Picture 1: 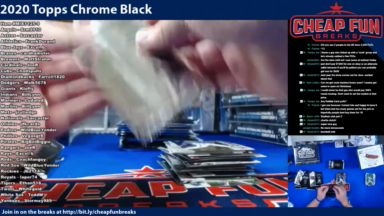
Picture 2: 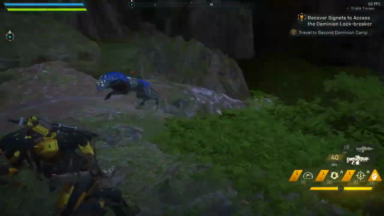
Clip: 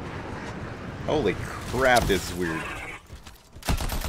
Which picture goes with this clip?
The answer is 2